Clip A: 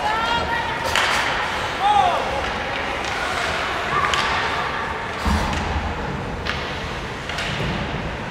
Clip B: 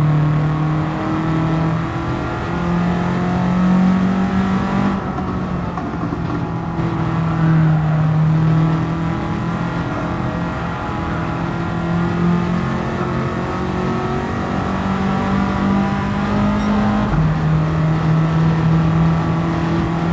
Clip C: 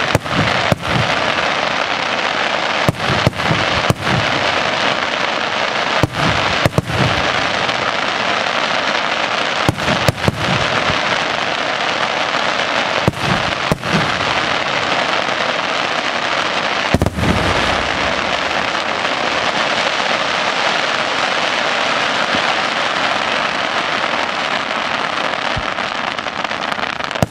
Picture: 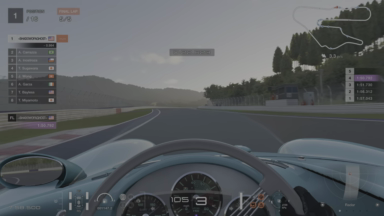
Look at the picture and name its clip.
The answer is B